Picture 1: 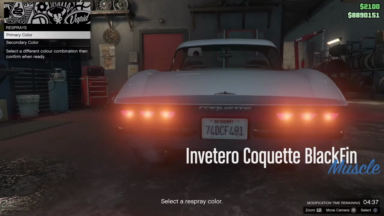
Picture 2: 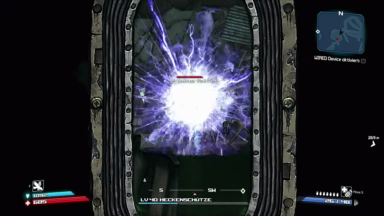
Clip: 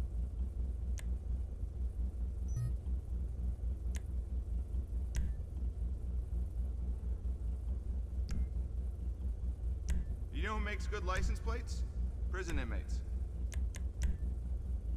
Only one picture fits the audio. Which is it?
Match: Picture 1